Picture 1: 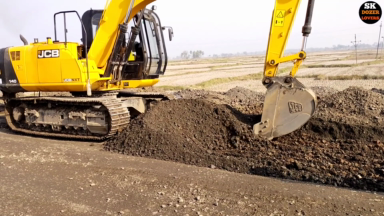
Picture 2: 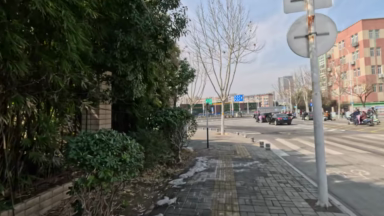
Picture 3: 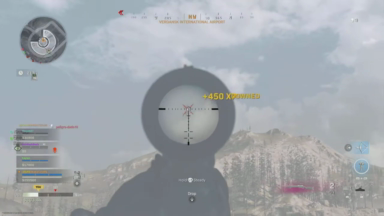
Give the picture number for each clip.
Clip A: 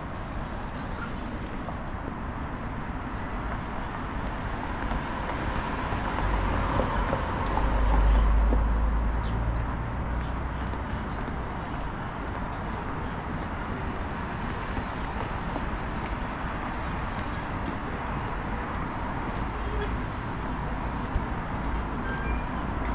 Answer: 2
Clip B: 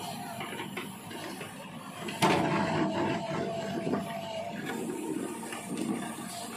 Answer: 1